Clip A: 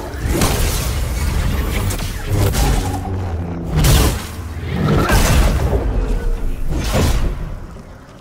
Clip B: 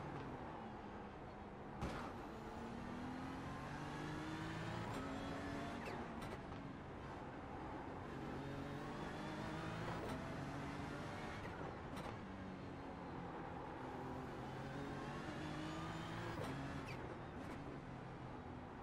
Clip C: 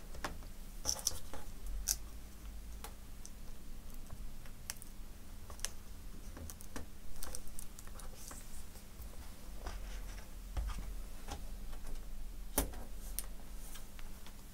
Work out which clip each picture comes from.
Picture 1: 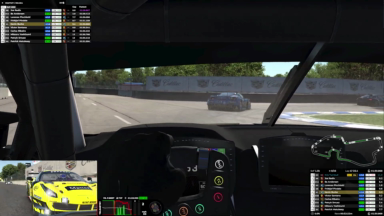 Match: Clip B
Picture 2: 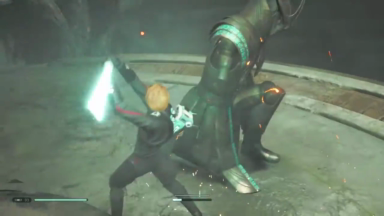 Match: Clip A